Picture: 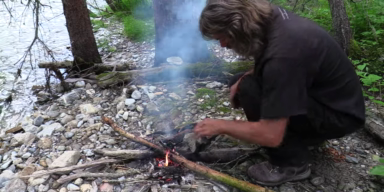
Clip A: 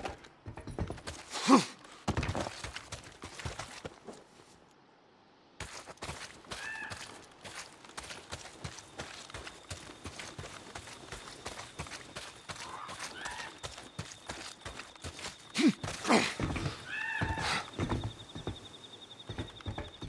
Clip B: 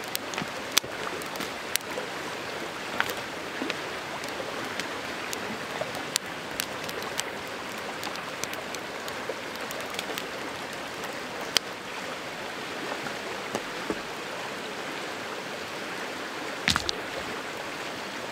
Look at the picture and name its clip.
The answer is B